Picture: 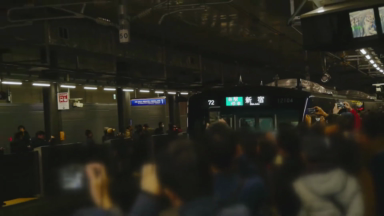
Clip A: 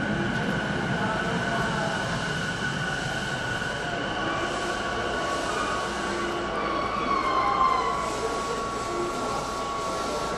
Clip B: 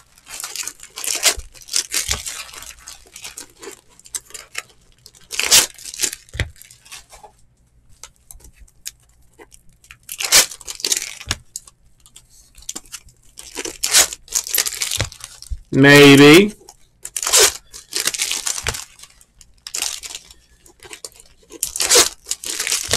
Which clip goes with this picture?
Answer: A